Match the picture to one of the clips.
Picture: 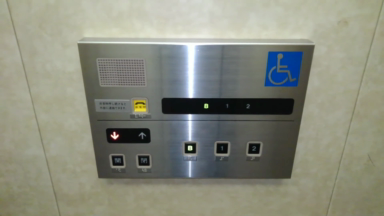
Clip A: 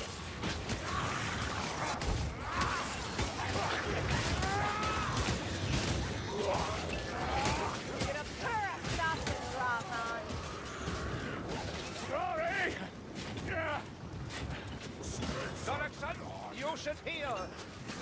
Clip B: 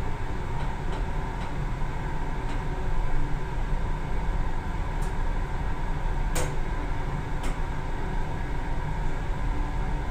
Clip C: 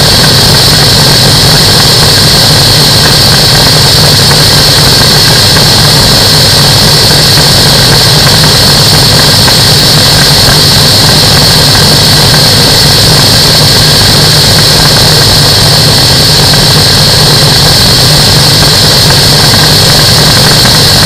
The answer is B